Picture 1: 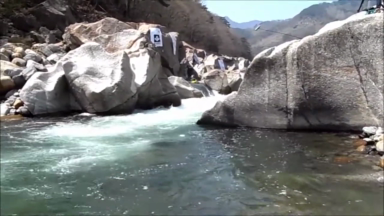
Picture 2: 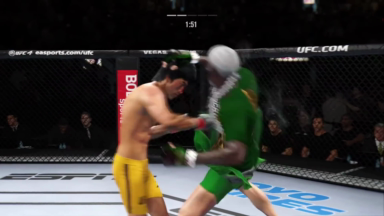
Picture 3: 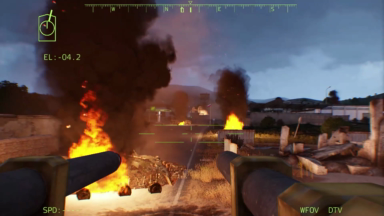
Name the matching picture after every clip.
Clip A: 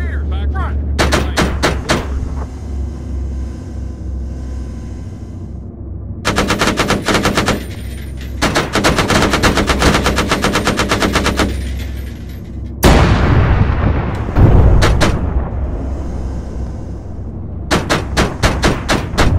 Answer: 3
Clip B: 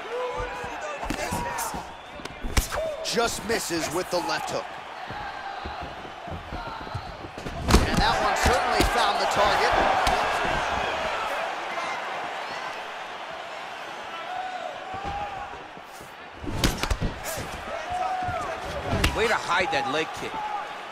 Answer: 2